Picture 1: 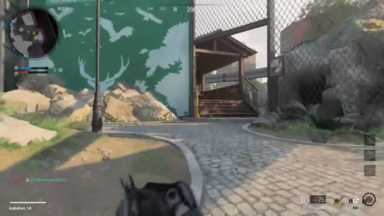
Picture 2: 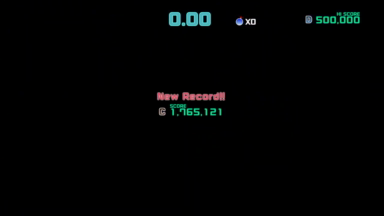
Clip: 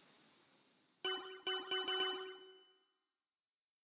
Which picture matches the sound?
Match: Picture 2